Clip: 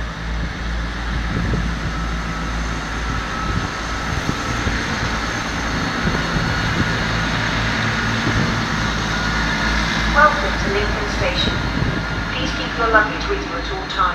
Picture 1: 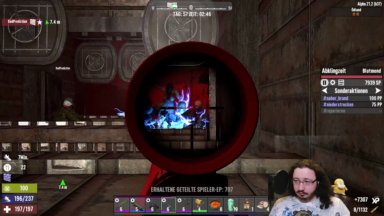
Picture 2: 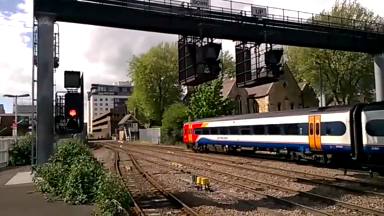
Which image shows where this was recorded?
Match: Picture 2